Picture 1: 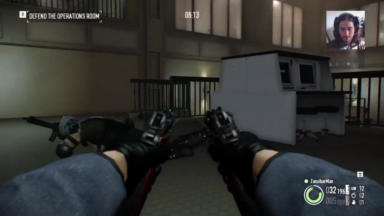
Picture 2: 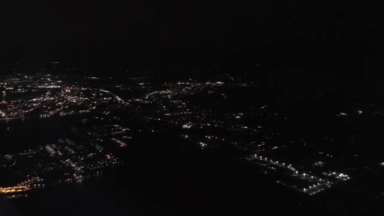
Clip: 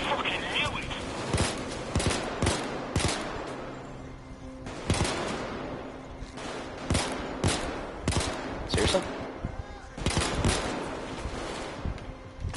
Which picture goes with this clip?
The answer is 1